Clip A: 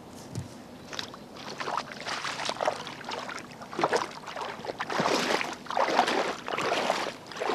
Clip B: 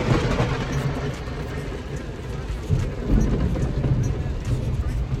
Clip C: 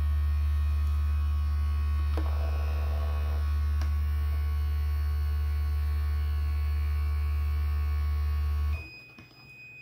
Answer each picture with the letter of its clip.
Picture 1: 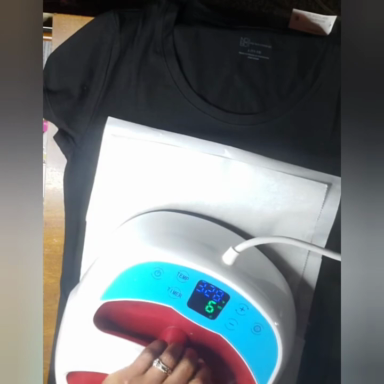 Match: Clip C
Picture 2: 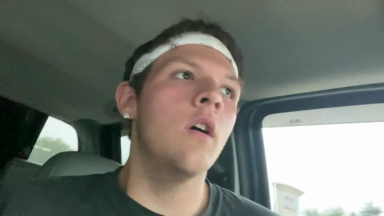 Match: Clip B